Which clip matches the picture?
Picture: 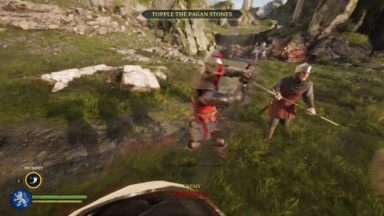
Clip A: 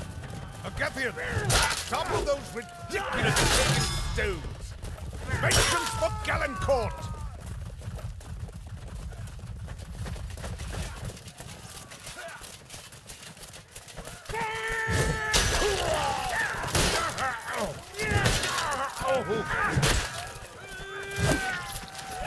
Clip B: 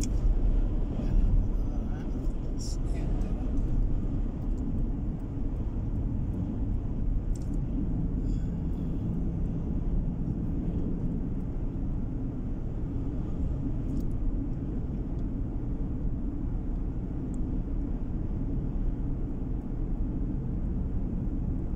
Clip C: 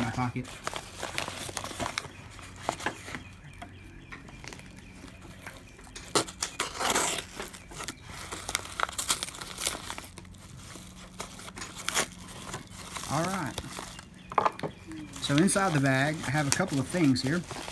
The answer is A